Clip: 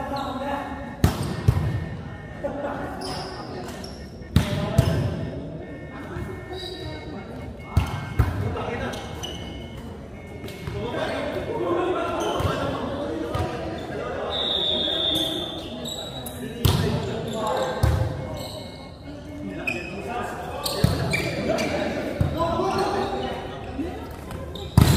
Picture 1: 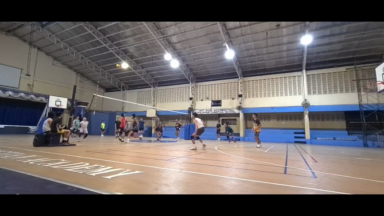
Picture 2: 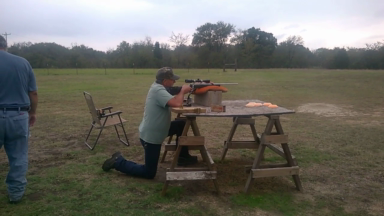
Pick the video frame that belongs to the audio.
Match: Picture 1